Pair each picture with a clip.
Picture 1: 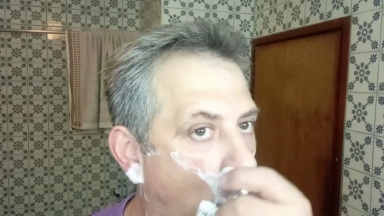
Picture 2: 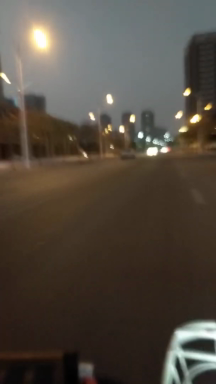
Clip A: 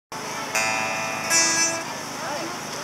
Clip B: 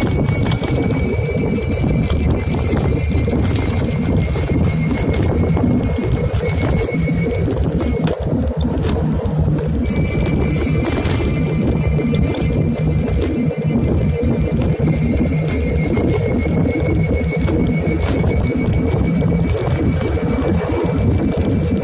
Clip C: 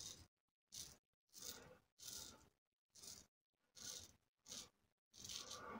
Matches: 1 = C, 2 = B